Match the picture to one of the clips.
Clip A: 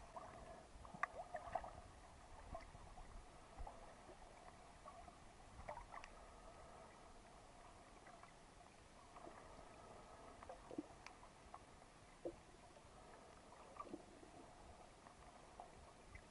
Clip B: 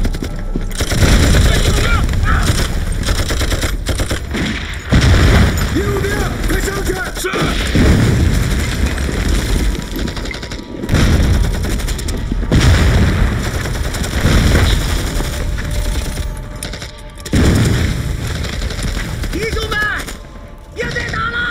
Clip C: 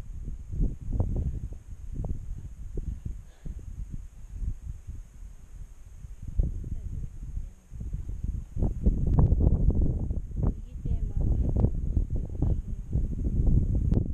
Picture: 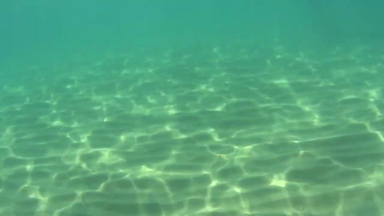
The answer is A